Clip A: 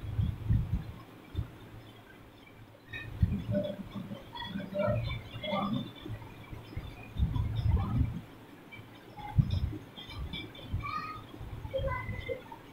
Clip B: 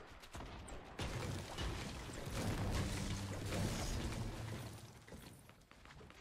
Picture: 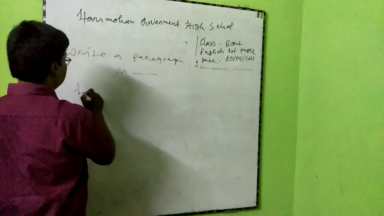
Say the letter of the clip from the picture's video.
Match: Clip A